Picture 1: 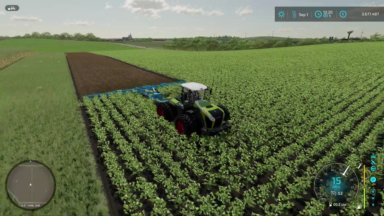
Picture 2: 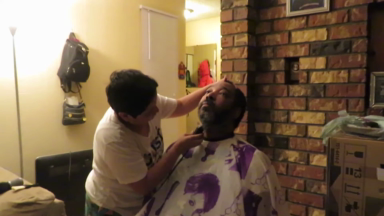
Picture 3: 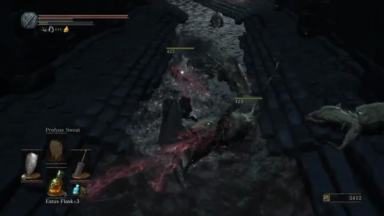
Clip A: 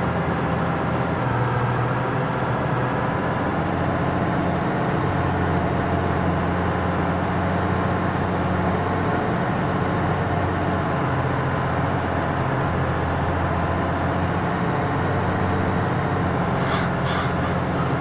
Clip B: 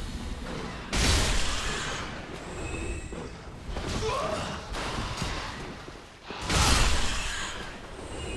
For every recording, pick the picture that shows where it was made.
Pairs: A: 1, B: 3